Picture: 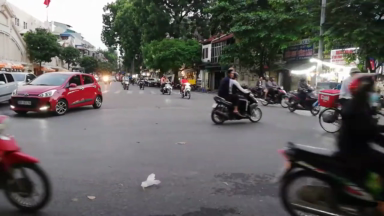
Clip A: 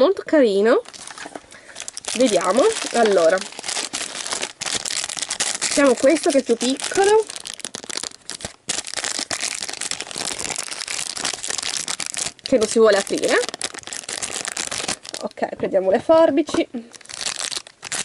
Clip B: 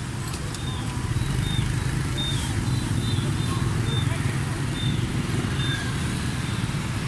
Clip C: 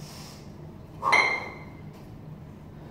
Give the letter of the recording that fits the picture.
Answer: B